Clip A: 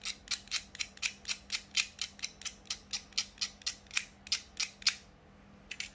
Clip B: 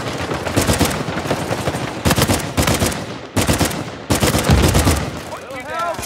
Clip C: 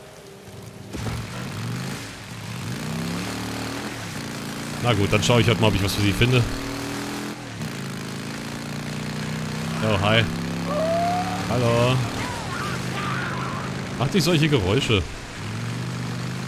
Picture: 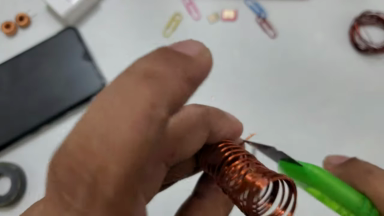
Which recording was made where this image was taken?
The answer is A